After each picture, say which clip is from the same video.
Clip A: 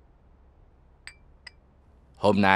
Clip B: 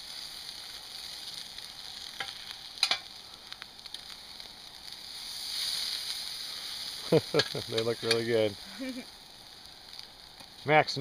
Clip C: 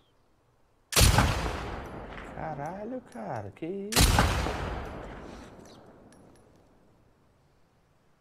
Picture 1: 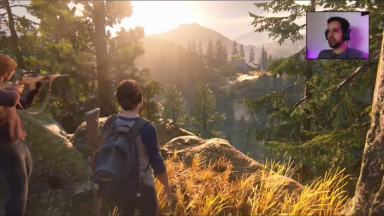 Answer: C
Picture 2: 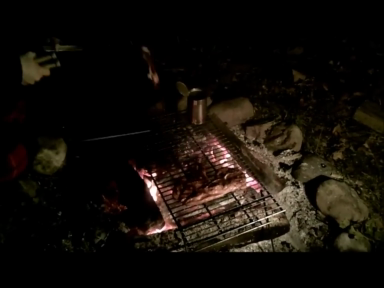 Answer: B